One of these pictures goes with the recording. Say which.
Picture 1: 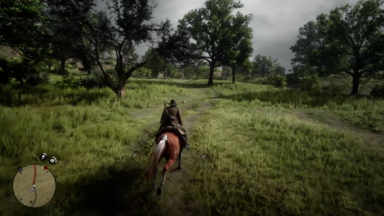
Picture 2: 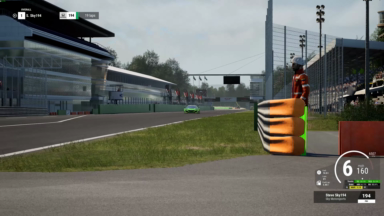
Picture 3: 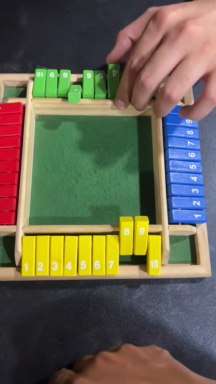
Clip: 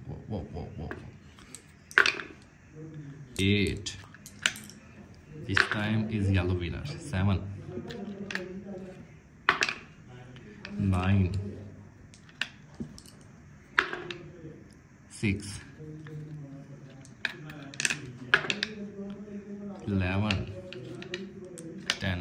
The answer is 3